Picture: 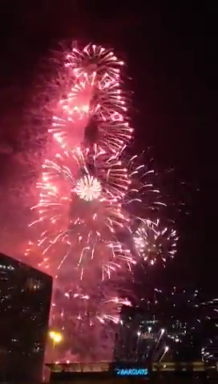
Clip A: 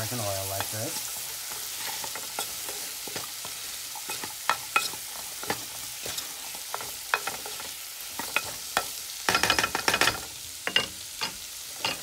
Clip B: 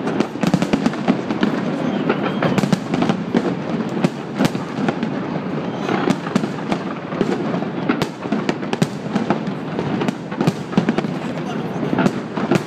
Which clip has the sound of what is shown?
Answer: B